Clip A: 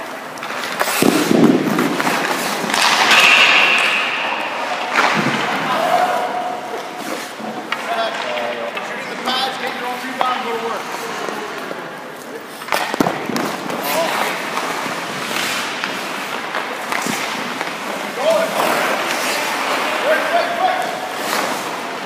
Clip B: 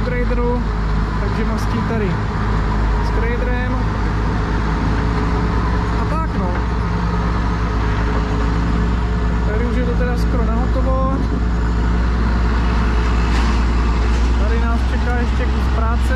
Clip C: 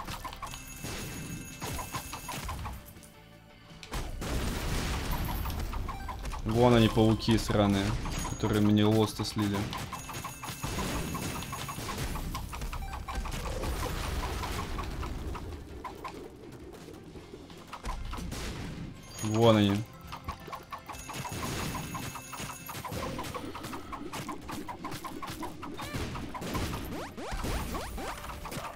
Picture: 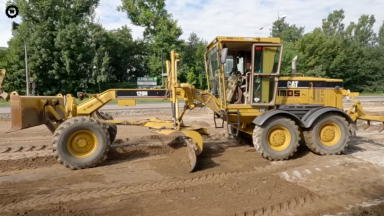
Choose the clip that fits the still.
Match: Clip B